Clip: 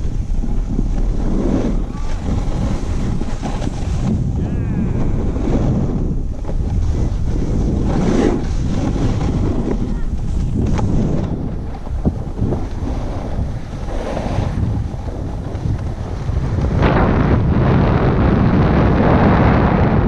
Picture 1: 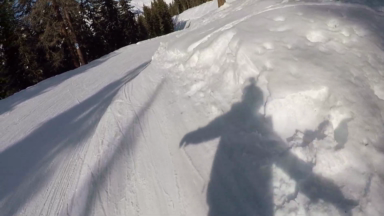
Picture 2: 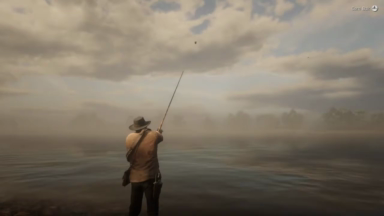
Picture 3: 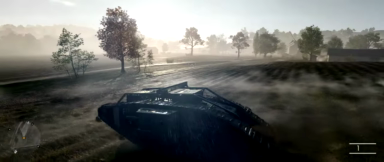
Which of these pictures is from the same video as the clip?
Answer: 1